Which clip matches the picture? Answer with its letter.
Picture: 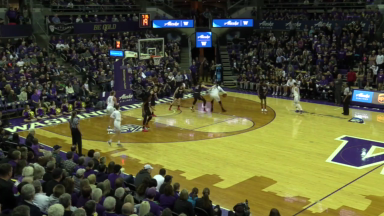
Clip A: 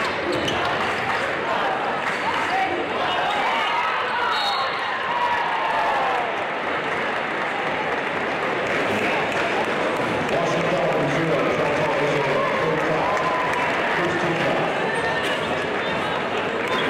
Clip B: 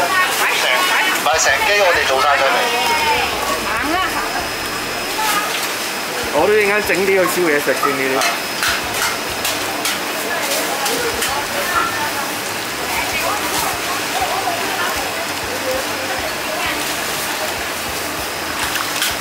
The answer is A